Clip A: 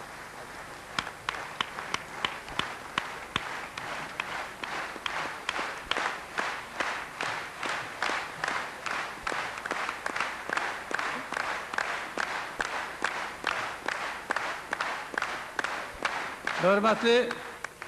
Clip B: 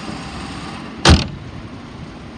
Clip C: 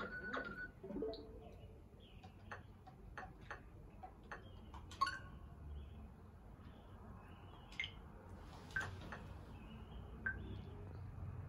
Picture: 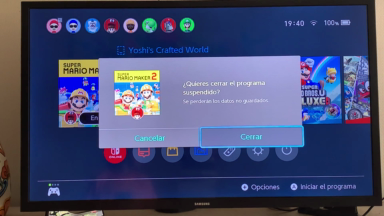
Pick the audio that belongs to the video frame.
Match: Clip C